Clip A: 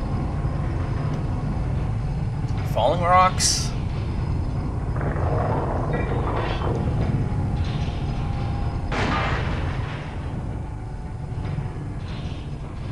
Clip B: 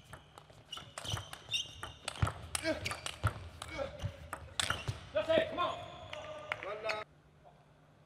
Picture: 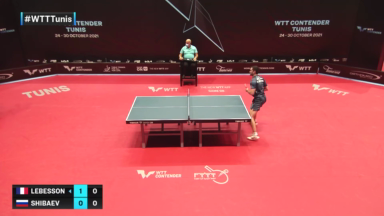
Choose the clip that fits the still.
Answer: B